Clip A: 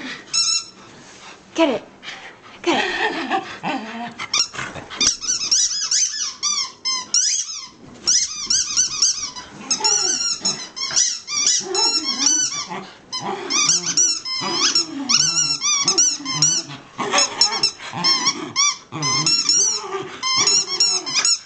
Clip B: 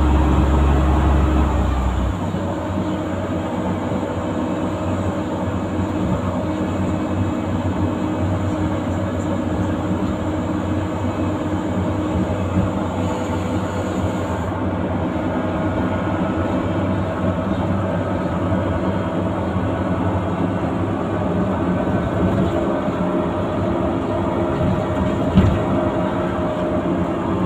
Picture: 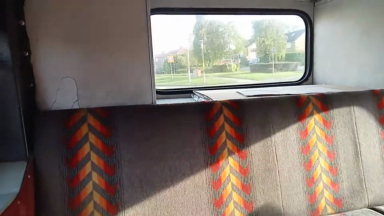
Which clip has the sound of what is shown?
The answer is B